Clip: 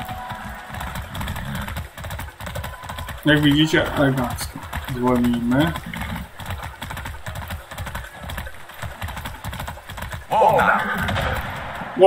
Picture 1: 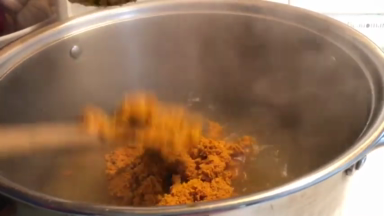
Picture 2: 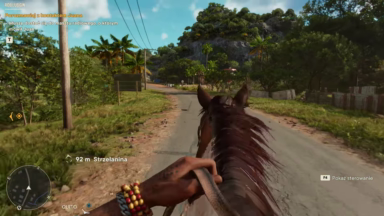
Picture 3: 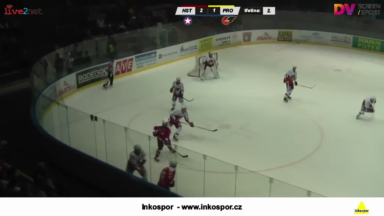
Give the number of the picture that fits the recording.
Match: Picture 2